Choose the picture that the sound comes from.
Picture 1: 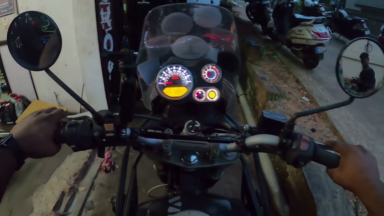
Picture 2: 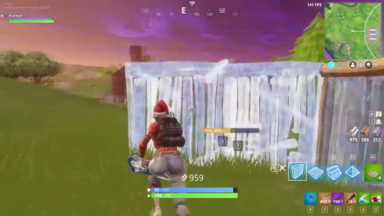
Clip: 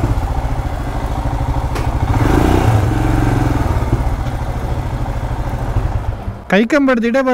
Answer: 1